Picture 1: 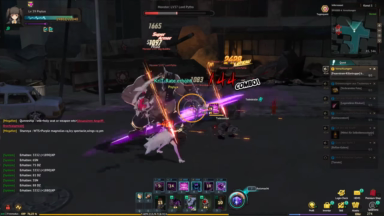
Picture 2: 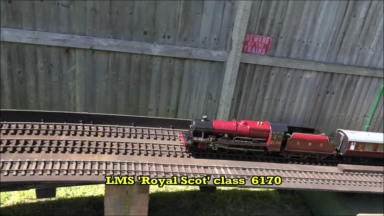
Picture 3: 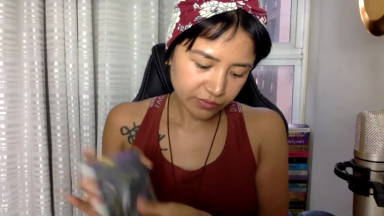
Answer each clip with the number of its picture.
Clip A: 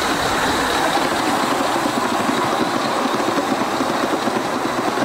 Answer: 2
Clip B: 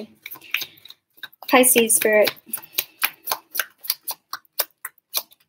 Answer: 3